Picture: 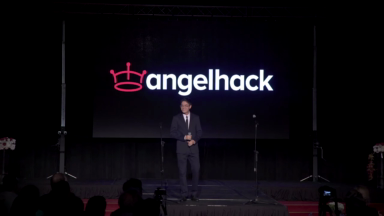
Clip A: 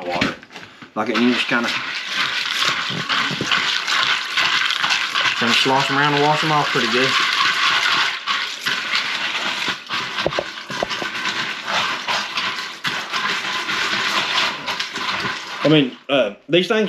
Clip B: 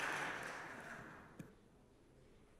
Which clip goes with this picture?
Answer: B